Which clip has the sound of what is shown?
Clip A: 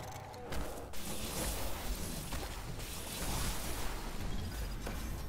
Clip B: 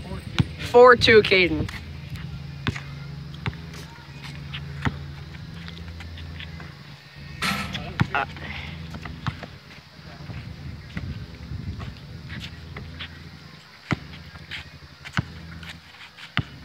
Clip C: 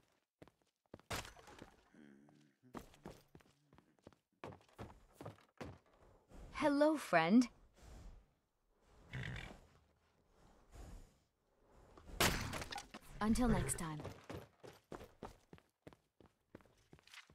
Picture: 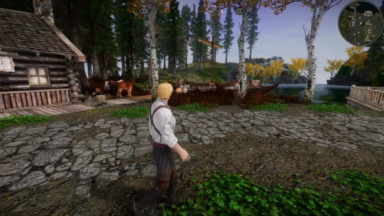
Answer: C